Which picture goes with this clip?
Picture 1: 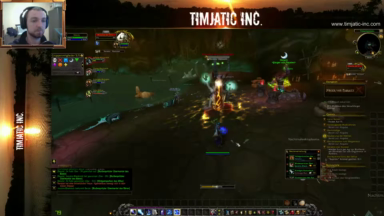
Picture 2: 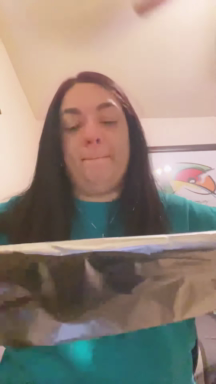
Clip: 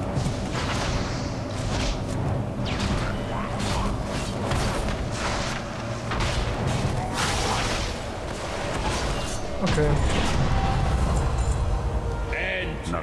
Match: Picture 1